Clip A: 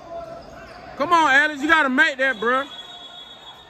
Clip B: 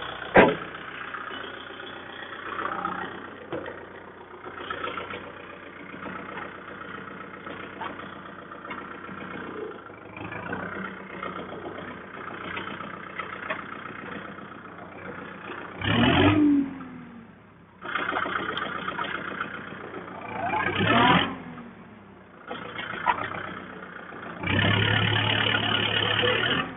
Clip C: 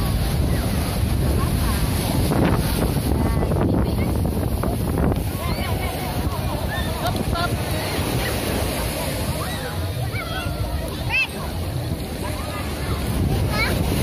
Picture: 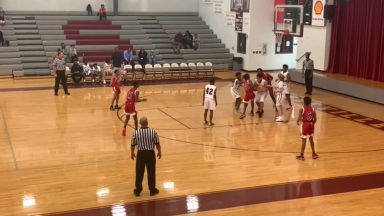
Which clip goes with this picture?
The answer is A